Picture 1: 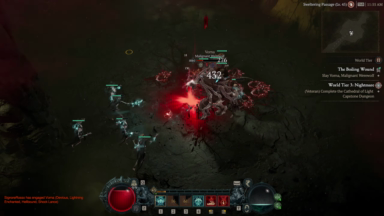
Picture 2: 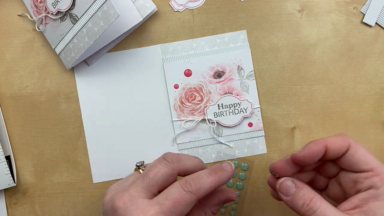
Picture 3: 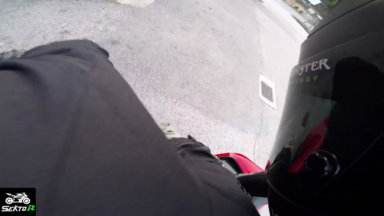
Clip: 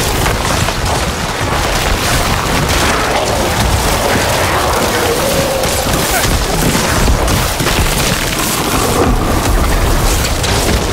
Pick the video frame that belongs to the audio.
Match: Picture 1